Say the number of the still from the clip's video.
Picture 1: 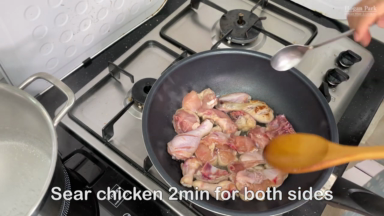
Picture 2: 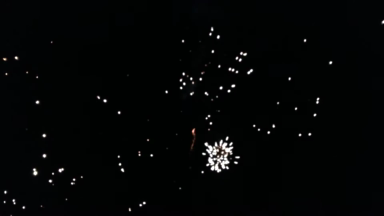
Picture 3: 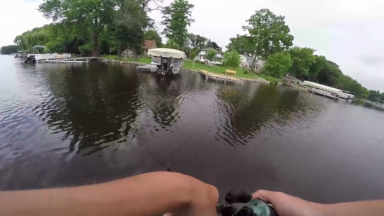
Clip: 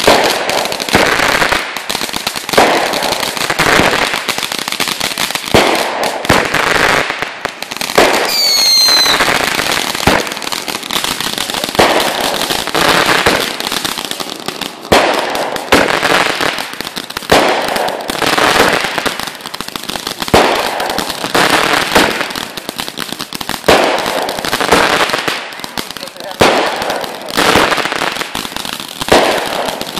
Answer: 2